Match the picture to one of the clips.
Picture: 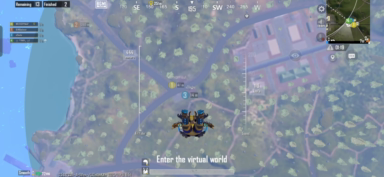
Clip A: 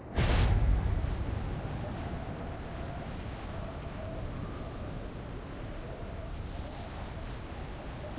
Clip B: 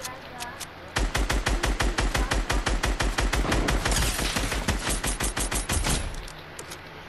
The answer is A